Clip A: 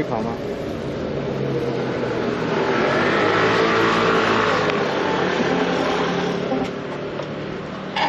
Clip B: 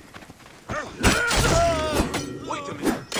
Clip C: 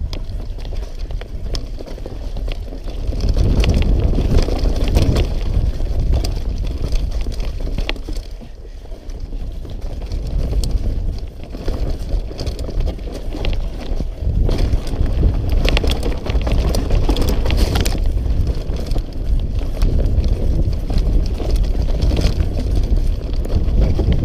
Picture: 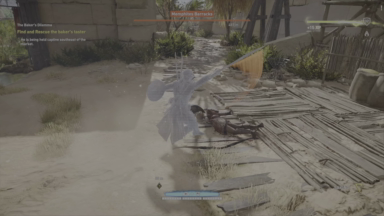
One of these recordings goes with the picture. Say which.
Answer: B